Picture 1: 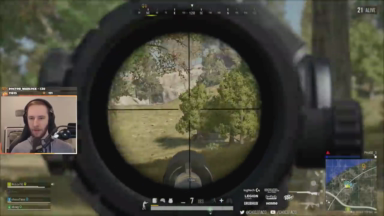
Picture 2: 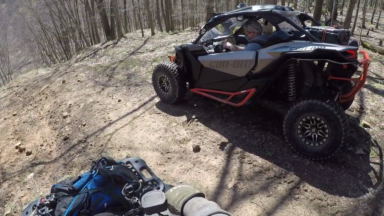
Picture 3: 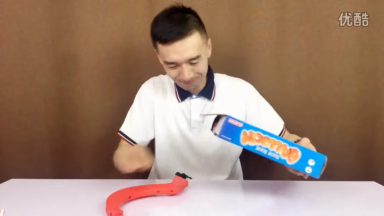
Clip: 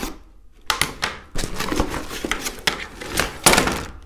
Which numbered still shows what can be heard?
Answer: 3